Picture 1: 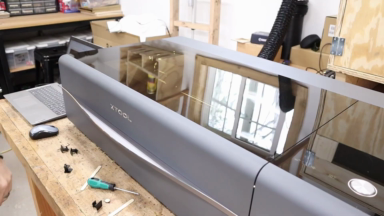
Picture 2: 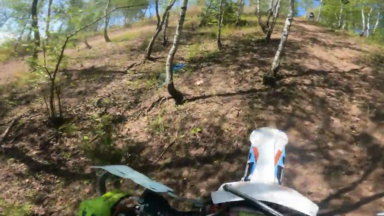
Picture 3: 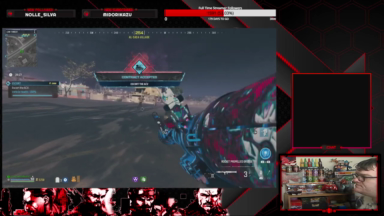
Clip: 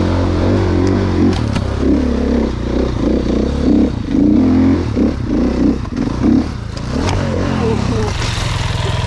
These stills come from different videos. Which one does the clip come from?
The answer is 2